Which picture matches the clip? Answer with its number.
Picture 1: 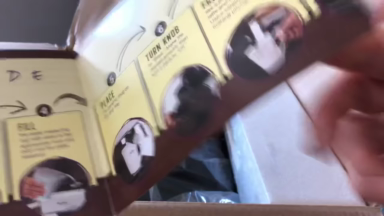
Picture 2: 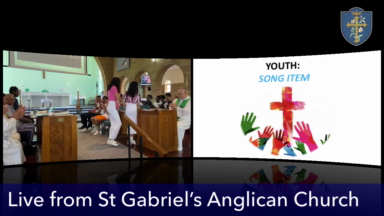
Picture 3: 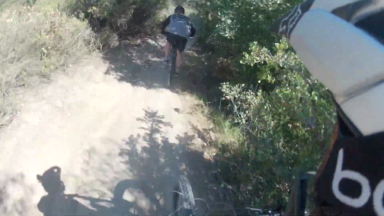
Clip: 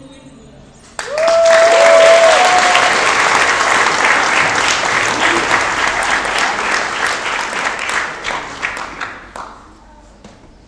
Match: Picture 2